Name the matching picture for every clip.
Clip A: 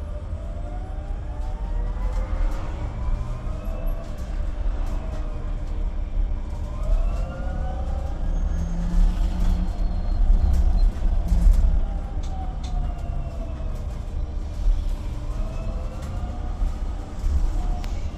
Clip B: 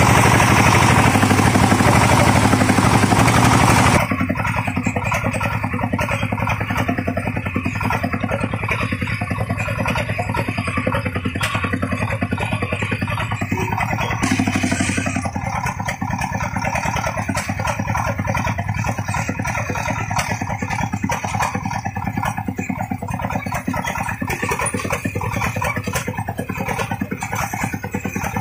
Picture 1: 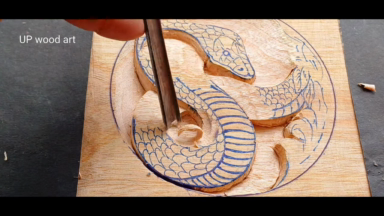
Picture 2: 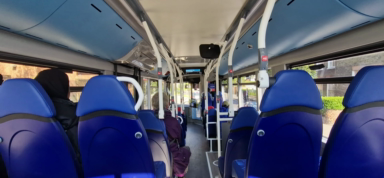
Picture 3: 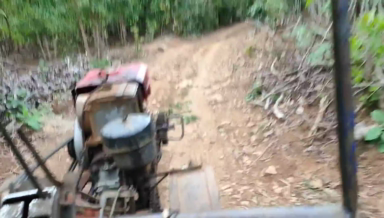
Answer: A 2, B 3